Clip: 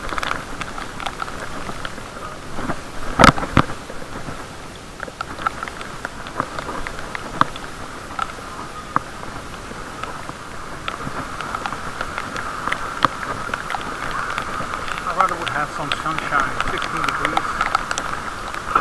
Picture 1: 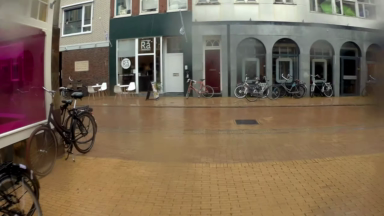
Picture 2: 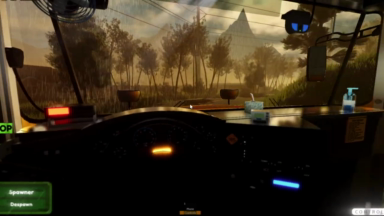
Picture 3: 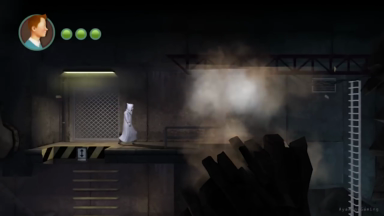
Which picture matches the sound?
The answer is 1